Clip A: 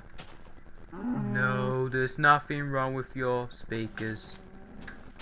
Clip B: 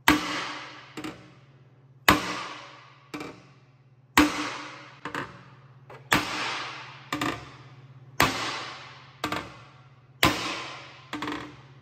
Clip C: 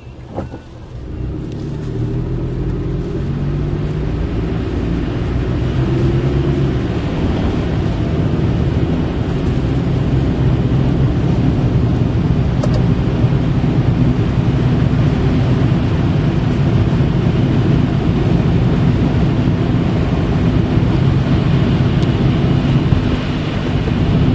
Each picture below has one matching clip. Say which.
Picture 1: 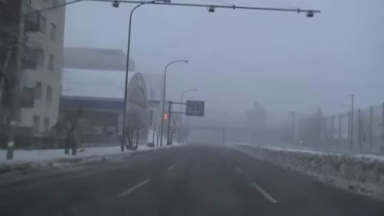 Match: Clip C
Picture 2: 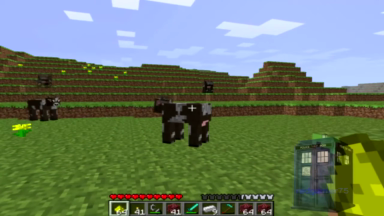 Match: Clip A